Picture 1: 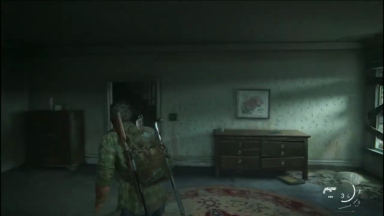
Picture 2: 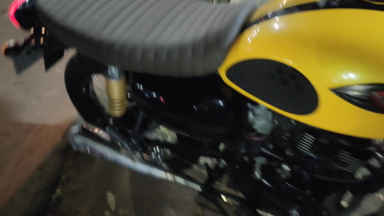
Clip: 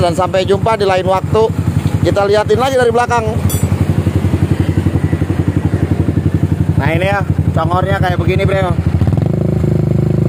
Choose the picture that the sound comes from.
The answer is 2